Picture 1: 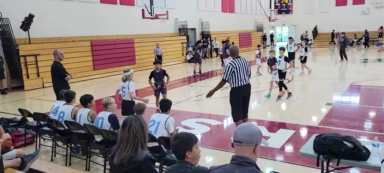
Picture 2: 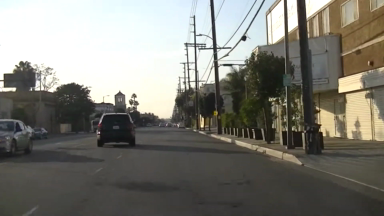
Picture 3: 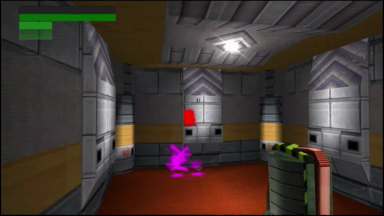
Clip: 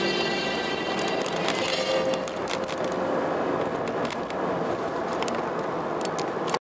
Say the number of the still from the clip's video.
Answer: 2